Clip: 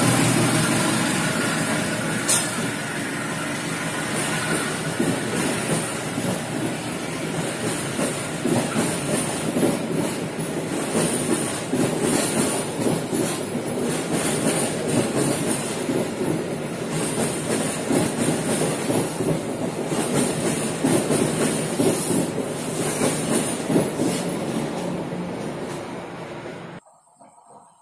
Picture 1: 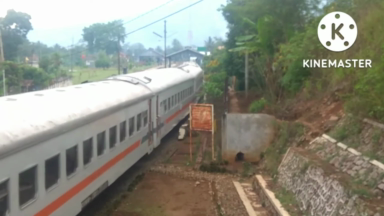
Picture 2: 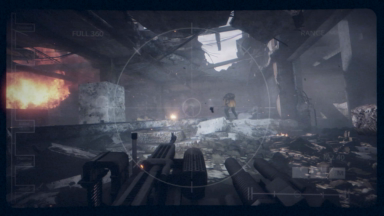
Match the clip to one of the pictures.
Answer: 1